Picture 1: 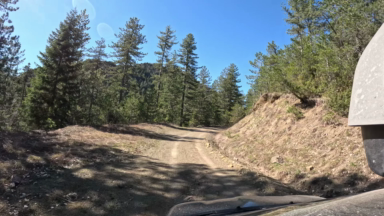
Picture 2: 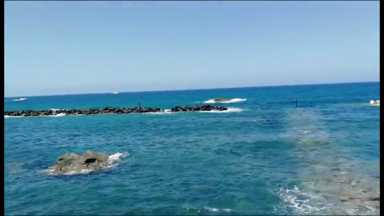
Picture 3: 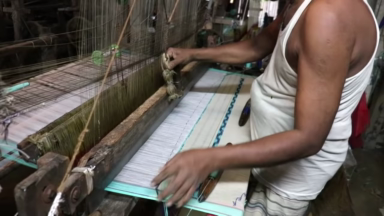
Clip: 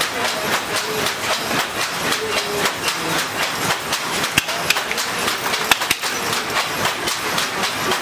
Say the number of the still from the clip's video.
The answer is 3